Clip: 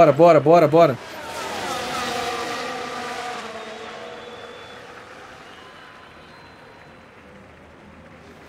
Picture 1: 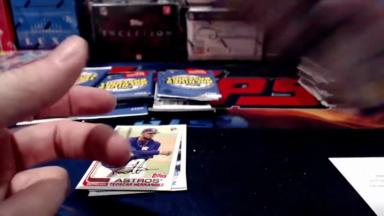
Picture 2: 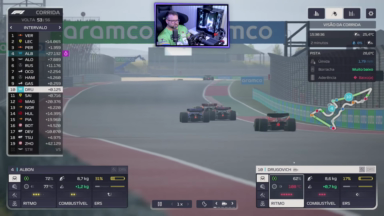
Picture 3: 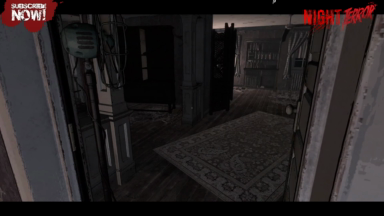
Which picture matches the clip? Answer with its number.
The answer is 2